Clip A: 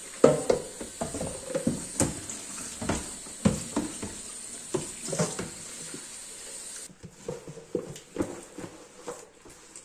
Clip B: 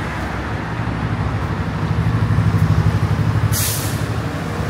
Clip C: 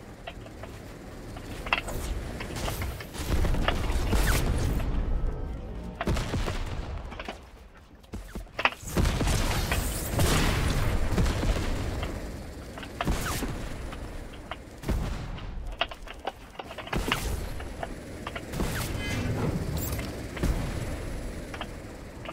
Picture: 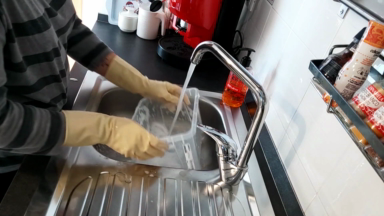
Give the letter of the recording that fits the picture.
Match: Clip A